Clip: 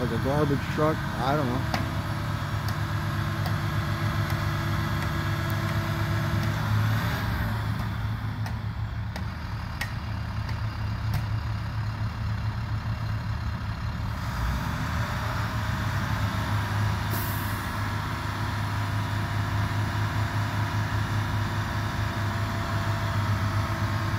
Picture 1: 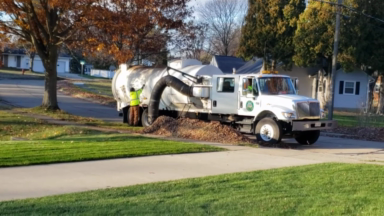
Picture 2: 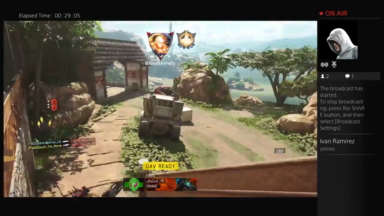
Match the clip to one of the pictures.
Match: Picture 1